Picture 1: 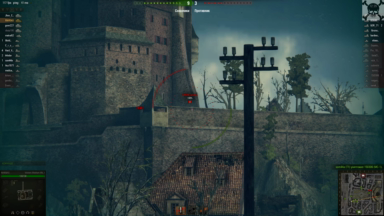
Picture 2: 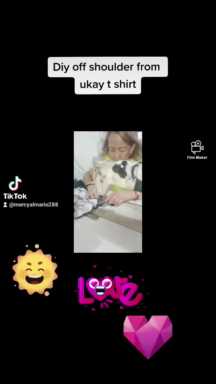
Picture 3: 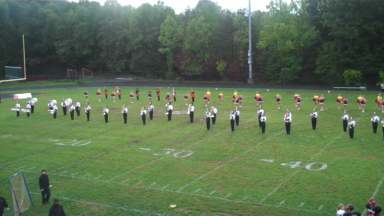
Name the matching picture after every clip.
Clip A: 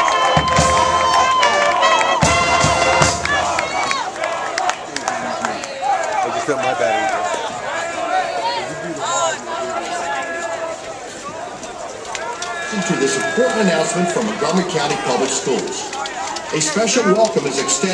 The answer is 3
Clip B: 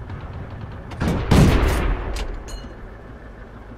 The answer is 1